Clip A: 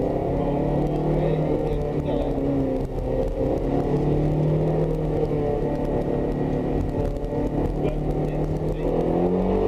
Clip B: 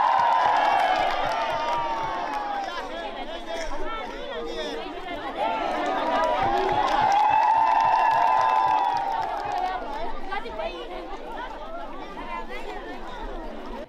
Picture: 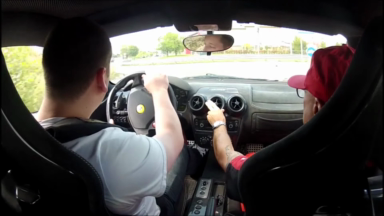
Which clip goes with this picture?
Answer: A